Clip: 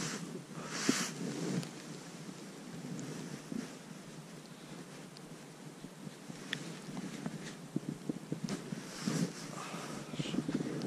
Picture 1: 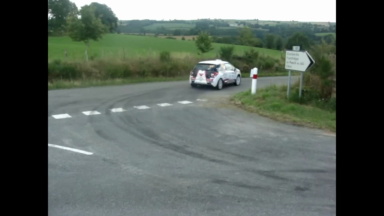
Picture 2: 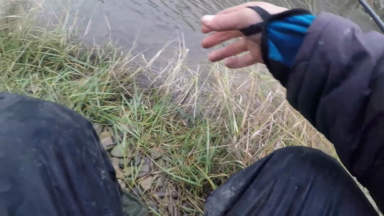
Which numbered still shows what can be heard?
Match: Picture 2